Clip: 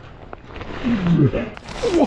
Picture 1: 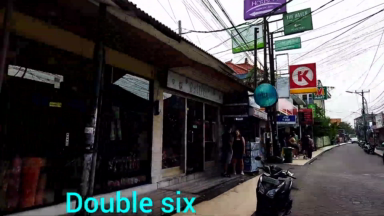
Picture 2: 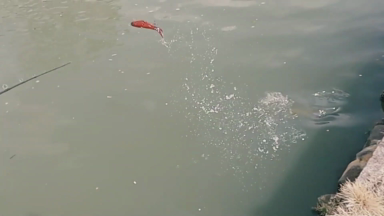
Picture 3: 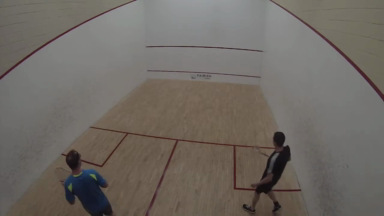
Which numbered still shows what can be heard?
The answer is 2